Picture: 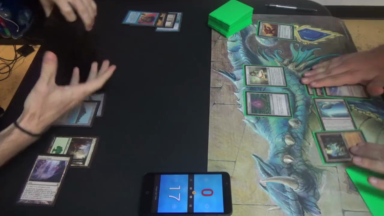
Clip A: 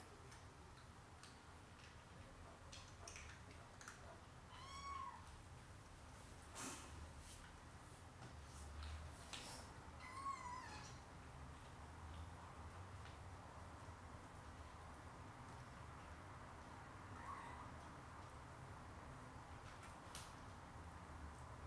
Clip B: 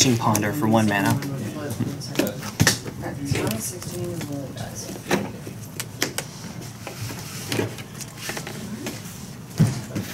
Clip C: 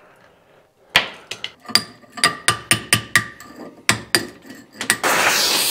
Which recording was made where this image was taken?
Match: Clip B